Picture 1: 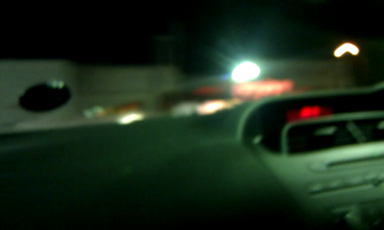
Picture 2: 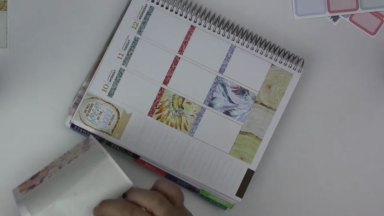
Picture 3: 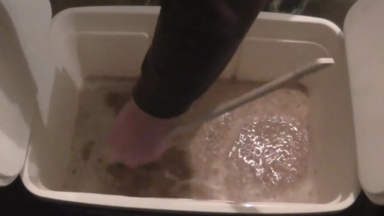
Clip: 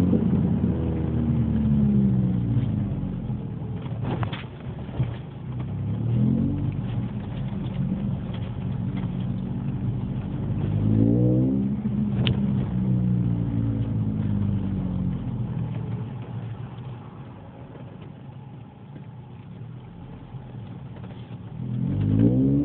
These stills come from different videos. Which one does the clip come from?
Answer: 1